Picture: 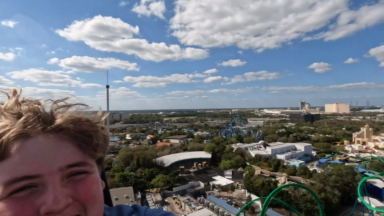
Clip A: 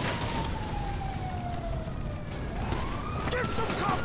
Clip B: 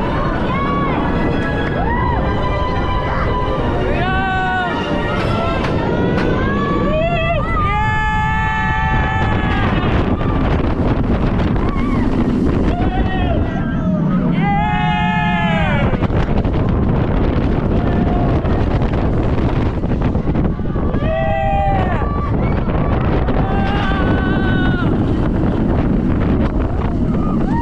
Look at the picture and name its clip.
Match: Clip B